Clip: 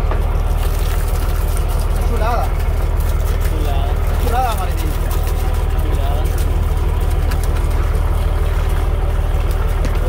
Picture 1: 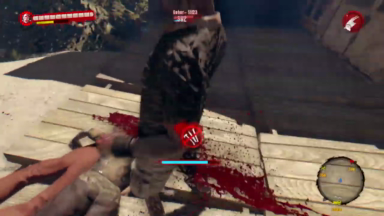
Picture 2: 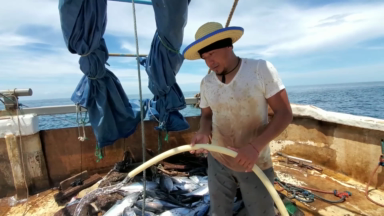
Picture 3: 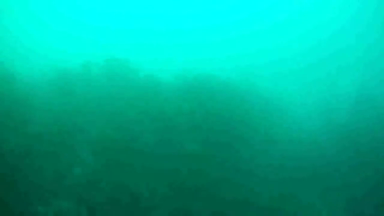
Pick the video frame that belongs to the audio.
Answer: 2